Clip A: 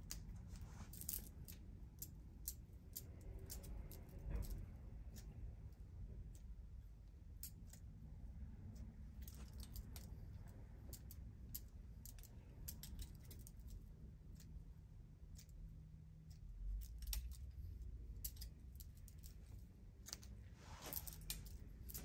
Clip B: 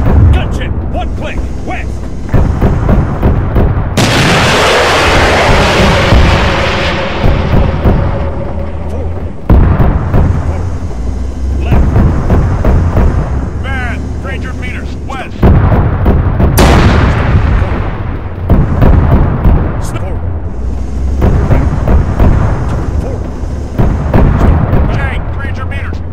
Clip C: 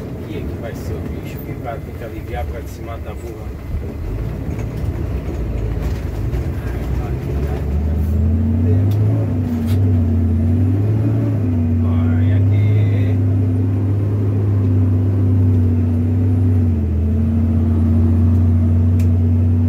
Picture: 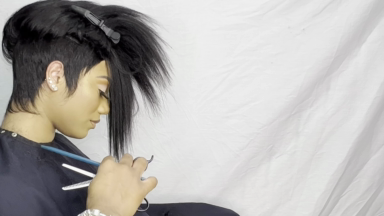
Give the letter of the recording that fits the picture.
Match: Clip A